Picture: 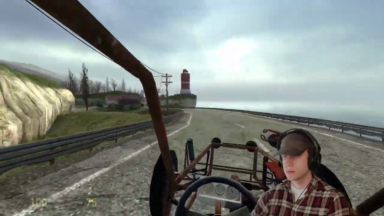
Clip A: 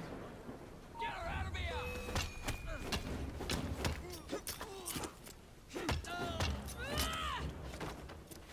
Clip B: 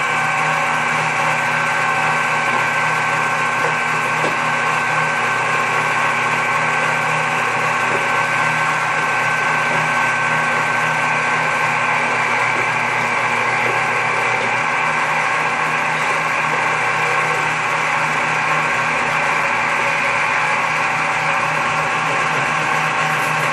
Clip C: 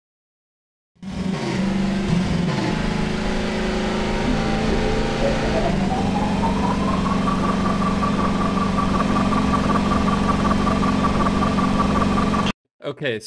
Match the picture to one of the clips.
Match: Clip C